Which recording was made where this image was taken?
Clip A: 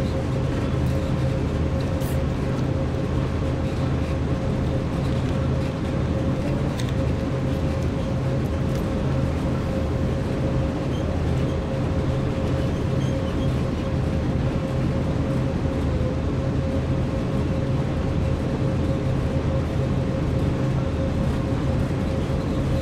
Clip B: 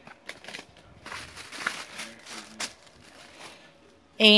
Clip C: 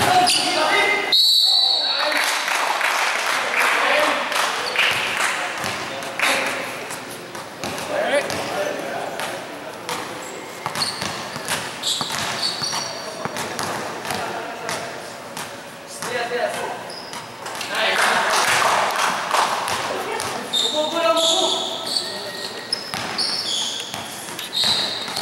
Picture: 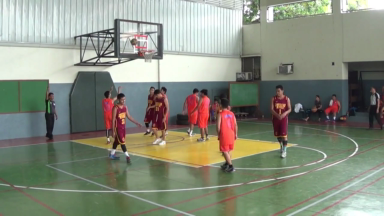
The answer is C